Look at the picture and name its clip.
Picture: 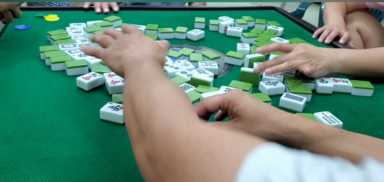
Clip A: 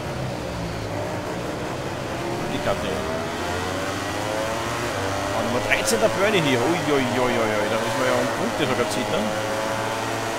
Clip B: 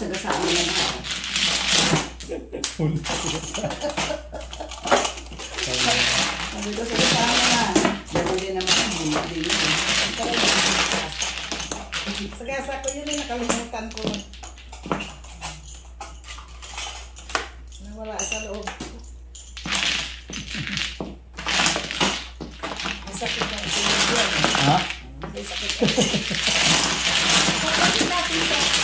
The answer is B